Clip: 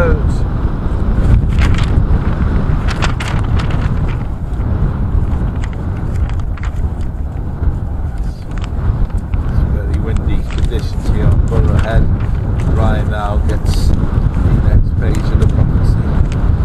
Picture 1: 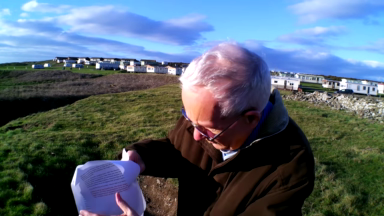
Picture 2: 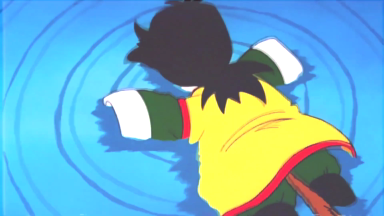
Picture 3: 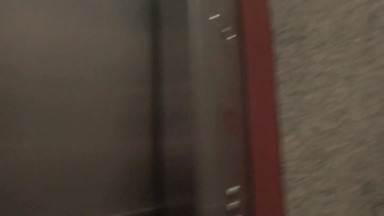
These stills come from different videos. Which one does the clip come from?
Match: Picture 1